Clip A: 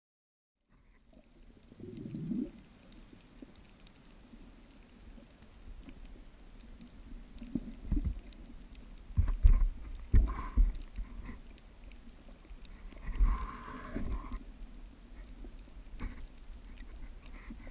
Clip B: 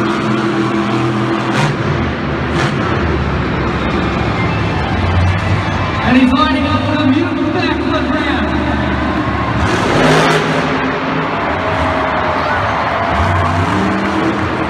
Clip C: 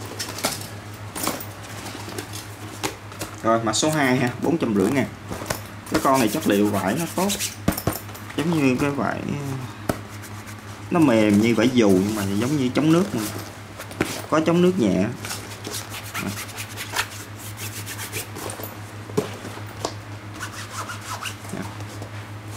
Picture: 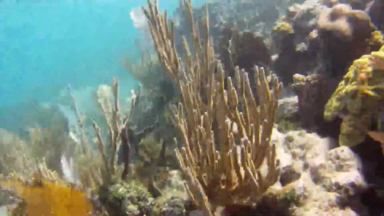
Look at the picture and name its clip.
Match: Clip A